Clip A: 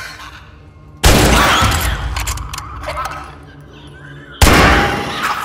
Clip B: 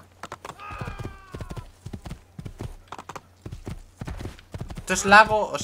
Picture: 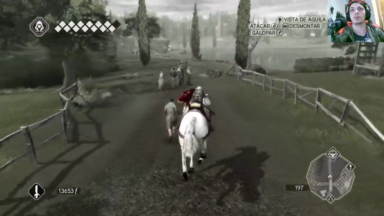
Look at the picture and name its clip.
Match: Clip B